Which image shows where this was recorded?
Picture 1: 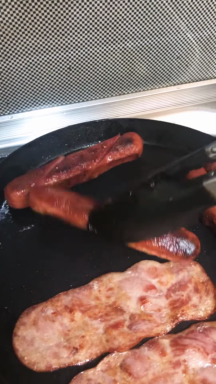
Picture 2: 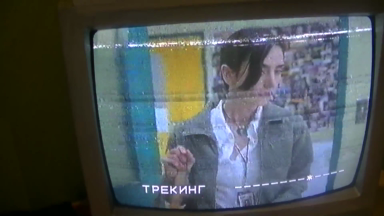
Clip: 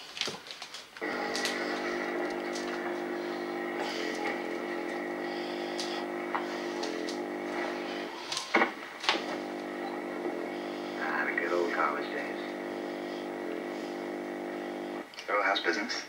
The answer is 2